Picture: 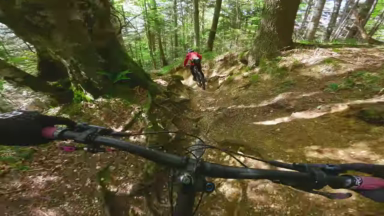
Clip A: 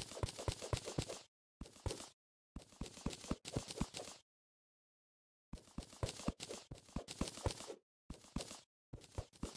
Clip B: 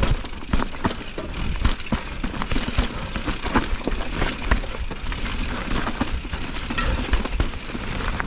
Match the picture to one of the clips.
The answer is B